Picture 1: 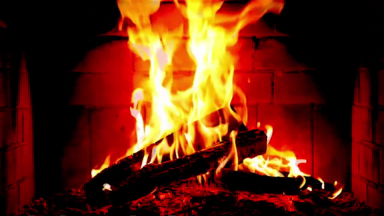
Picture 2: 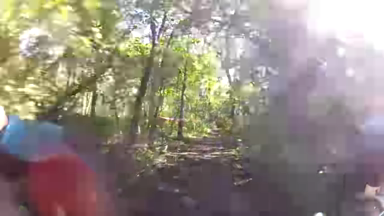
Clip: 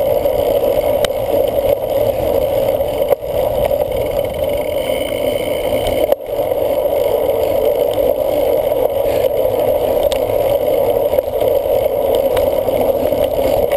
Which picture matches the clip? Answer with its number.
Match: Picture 2